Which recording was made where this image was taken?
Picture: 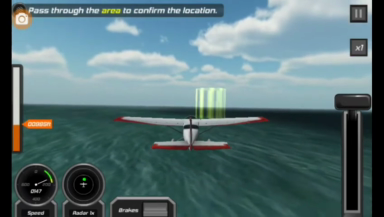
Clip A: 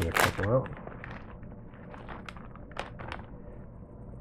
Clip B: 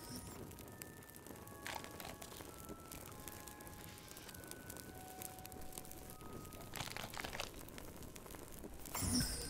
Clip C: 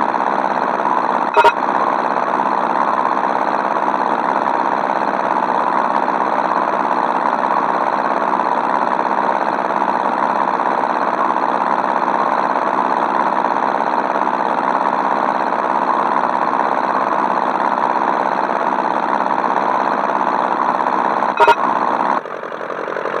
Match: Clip C